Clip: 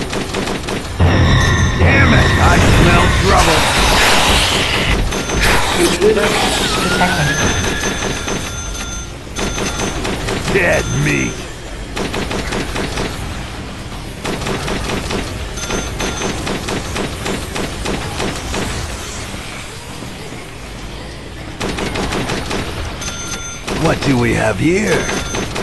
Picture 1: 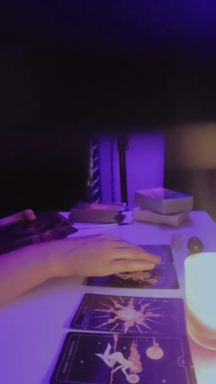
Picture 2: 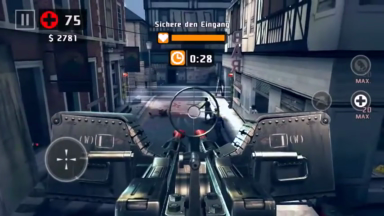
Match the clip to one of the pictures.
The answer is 2